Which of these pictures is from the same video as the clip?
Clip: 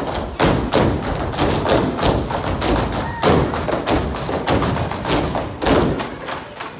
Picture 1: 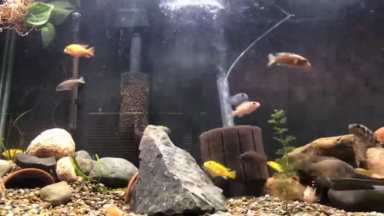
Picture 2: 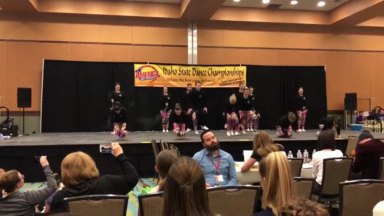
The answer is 2